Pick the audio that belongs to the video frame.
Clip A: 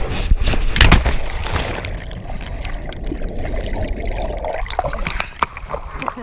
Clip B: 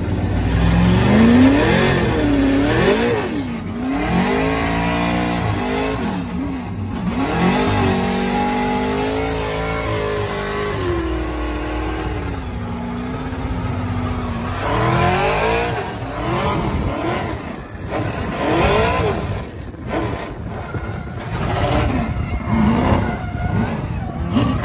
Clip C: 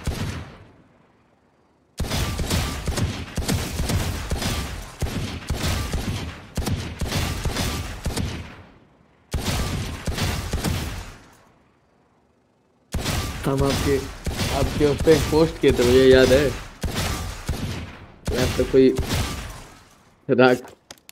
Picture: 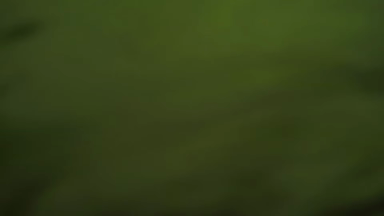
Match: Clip A